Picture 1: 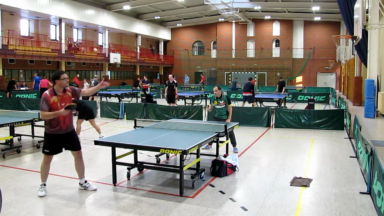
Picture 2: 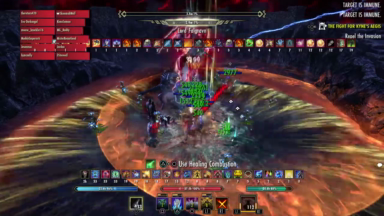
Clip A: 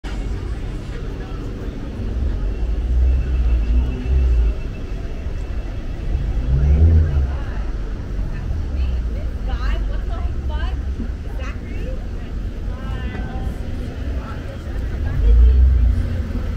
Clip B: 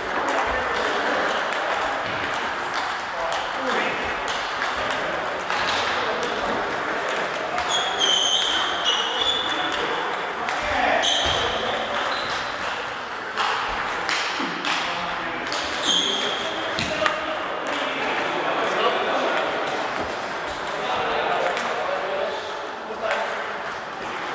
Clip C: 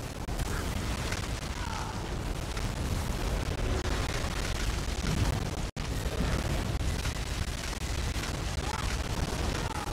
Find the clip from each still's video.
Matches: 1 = B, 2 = C